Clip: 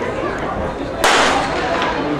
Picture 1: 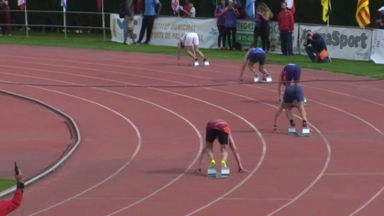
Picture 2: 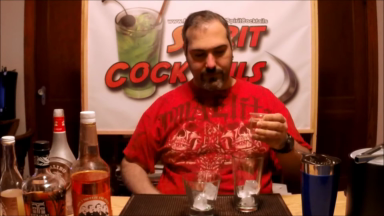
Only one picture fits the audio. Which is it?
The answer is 1